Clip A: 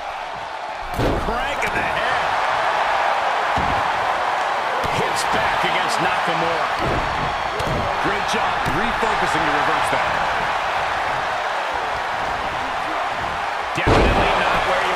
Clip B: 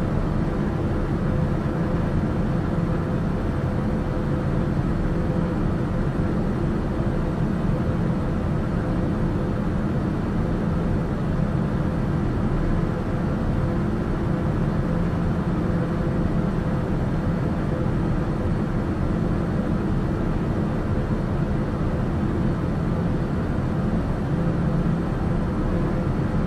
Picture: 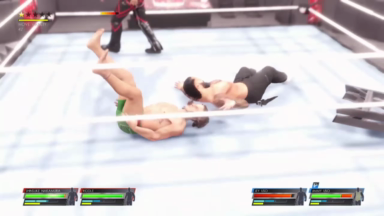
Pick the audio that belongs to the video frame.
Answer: A